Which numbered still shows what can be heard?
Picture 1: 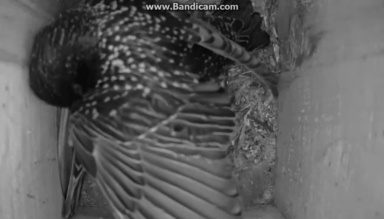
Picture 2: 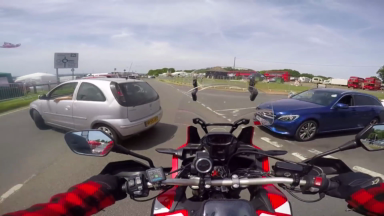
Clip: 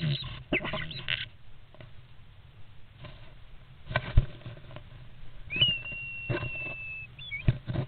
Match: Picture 1